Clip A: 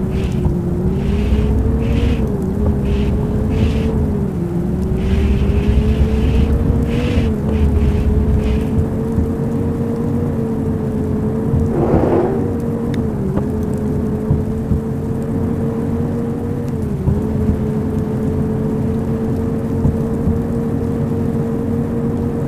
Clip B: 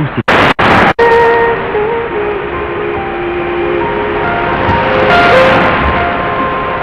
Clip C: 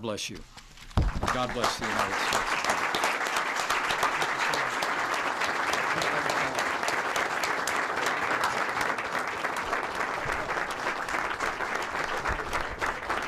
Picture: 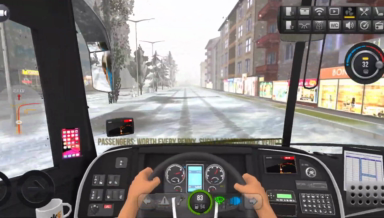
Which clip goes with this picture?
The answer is A